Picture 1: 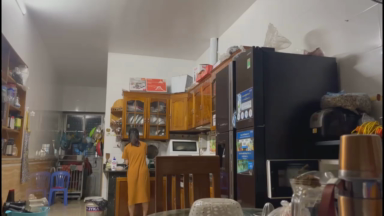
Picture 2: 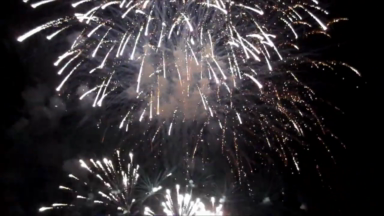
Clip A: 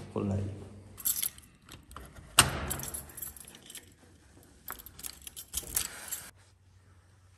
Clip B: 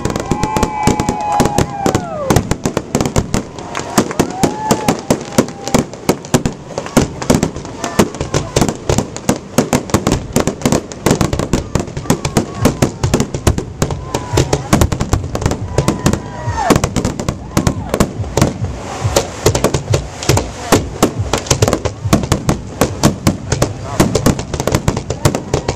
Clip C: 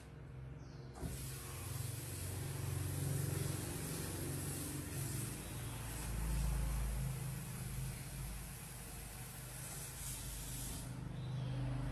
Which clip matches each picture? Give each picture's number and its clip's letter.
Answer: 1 C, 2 B